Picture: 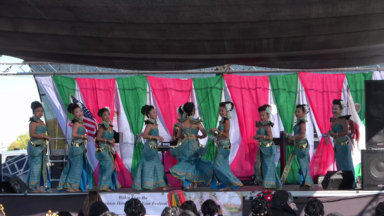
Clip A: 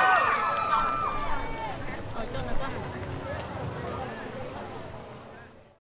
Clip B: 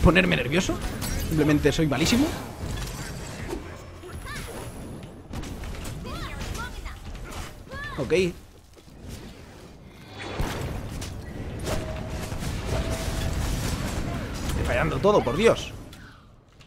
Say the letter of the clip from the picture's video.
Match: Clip A